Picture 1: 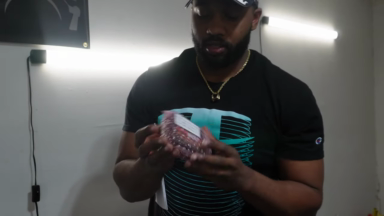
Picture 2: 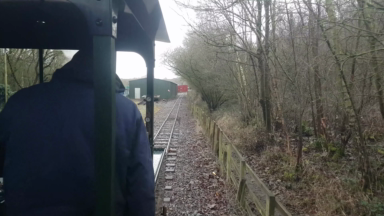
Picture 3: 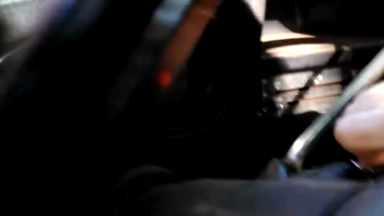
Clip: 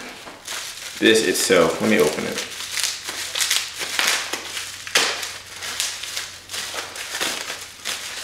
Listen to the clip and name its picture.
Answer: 1